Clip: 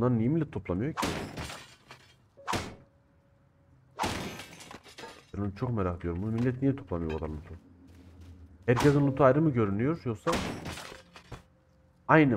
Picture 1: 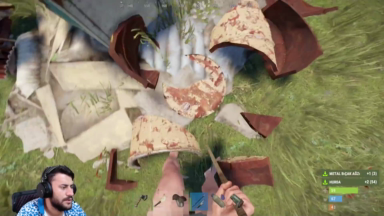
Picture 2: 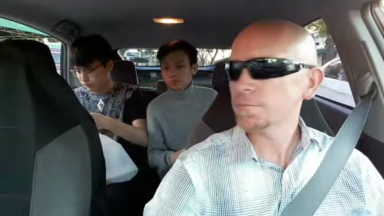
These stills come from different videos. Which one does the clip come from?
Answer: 1